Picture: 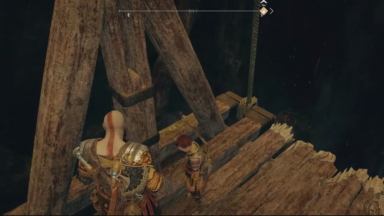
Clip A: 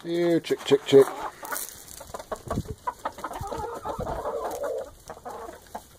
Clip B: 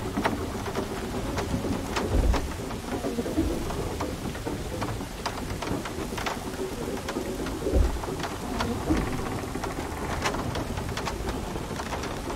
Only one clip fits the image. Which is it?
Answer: B